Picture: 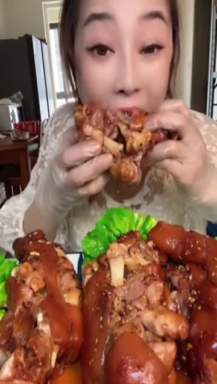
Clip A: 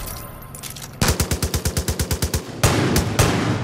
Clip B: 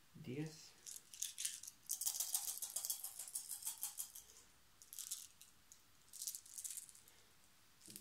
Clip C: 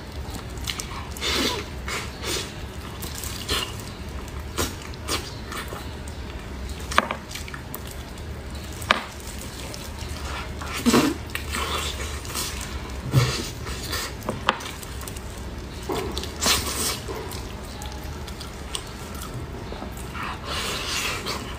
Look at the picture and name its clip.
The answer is C